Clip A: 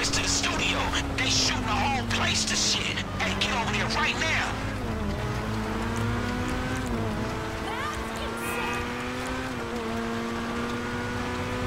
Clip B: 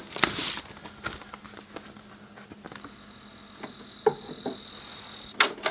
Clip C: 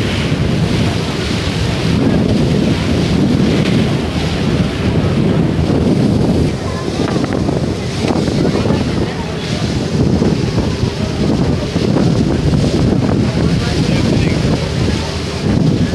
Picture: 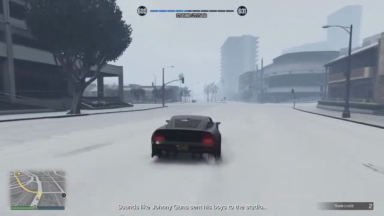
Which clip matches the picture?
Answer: A